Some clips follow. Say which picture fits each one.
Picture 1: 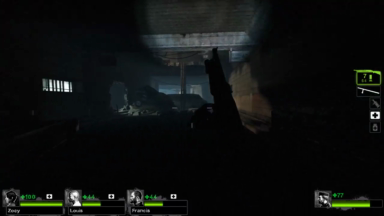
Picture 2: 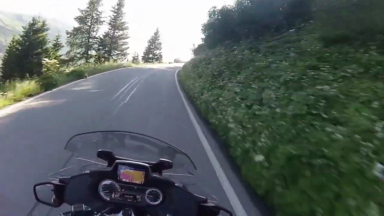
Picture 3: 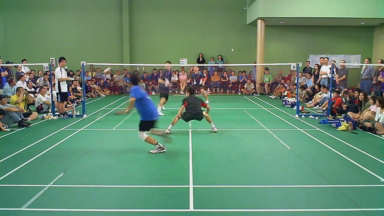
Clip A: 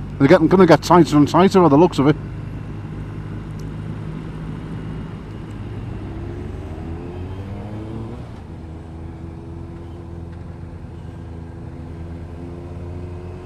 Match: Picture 2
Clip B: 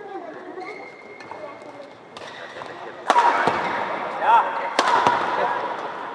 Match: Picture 3